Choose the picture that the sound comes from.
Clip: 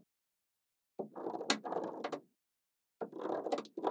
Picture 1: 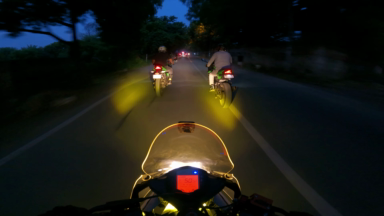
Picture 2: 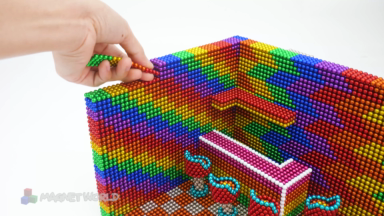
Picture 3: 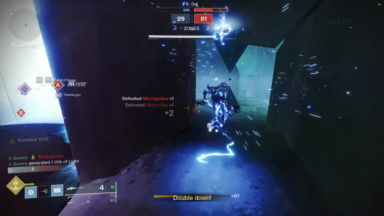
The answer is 2